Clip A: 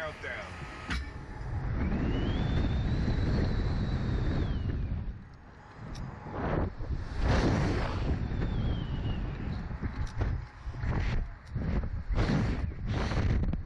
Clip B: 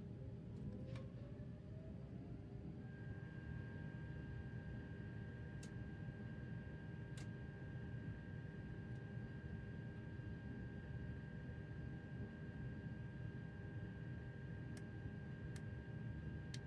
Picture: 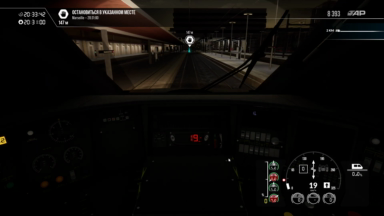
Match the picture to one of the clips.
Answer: B